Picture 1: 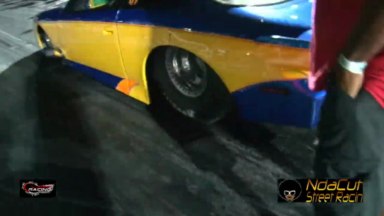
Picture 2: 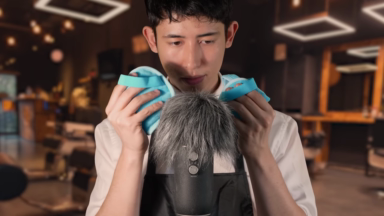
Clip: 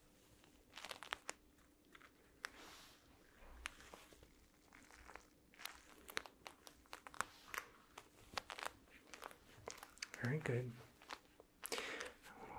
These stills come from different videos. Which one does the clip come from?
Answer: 2